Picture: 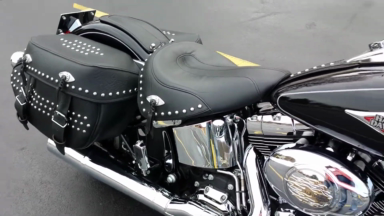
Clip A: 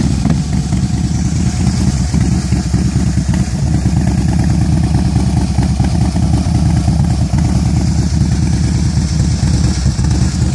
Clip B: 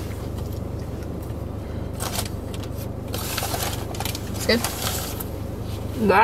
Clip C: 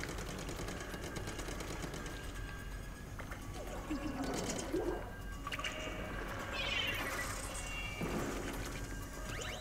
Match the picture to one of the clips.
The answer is A